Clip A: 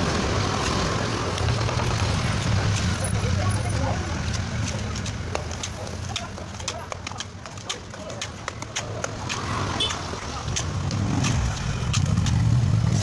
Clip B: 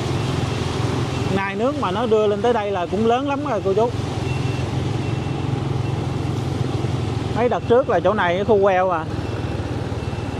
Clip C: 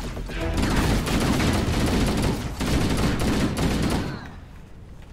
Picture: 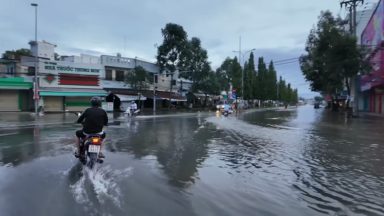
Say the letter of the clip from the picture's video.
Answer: B